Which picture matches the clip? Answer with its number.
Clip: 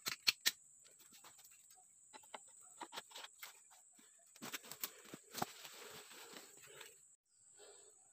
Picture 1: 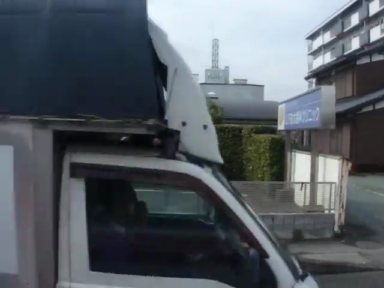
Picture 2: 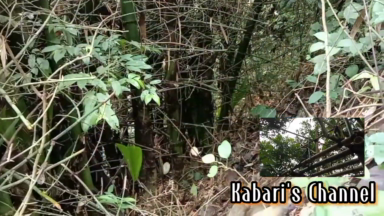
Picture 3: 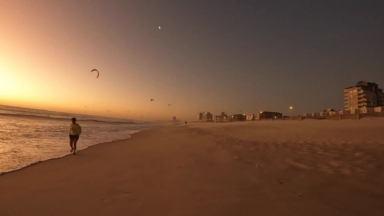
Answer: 2